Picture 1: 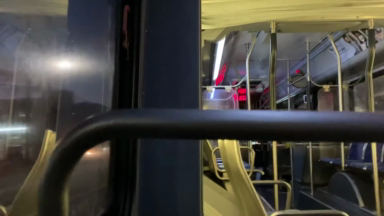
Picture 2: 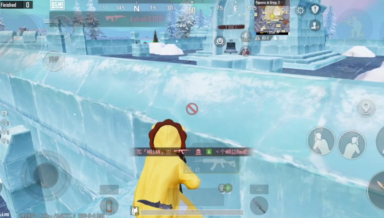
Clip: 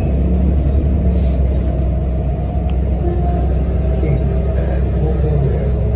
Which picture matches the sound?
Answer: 1